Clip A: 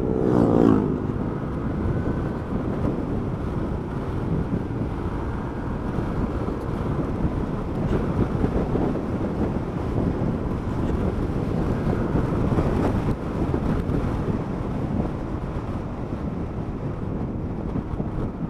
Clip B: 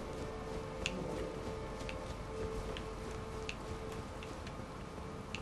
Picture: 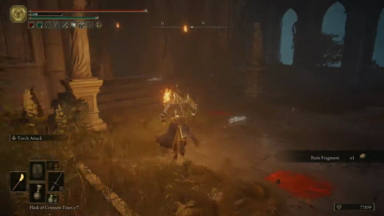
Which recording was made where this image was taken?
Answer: B